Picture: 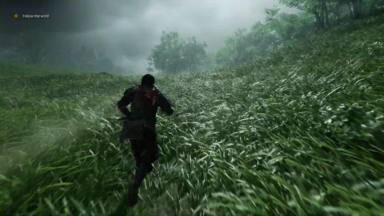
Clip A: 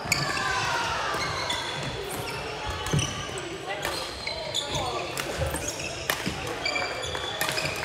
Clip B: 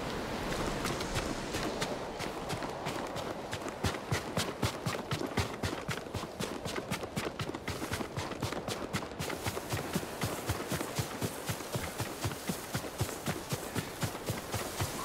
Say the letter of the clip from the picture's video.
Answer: B